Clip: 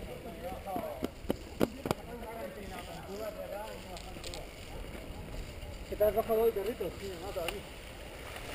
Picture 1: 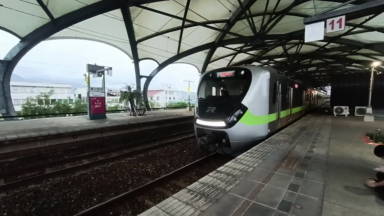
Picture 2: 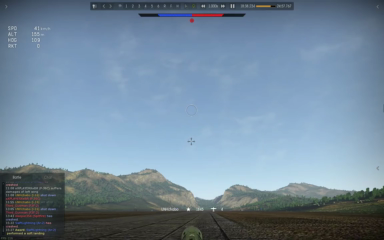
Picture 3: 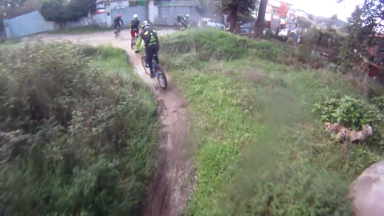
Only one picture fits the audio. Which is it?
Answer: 3